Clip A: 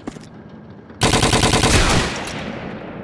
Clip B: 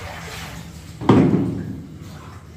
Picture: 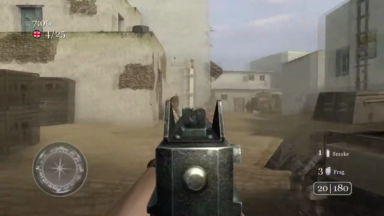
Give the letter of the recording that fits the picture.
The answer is A